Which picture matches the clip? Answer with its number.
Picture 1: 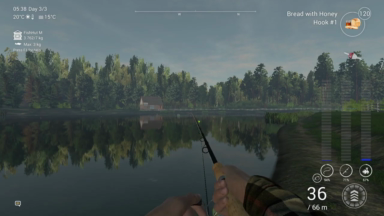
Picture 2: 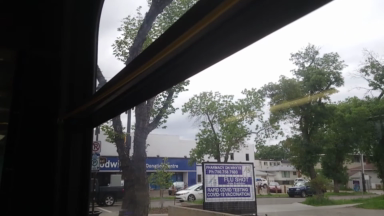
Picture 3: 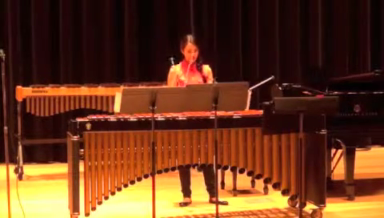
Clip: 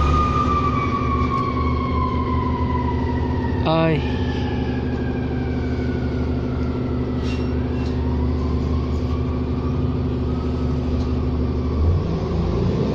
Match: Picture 2